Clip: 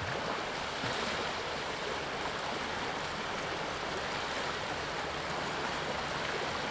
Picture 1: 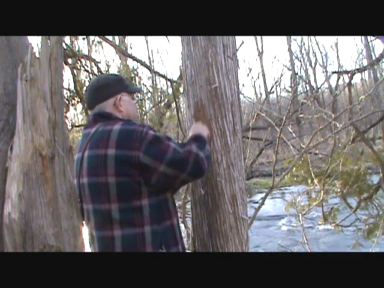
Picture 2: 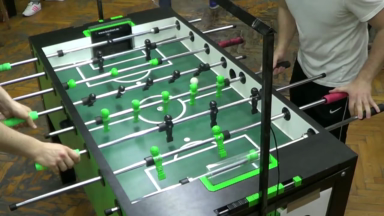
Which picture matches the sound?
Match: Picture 1